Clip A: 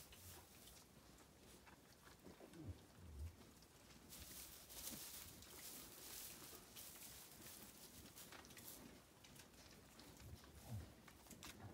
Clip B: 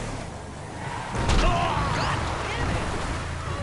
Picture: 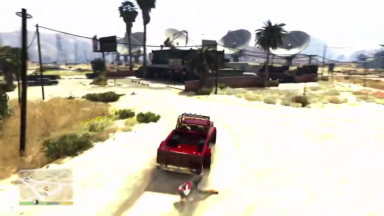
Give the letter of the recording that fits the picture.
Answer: B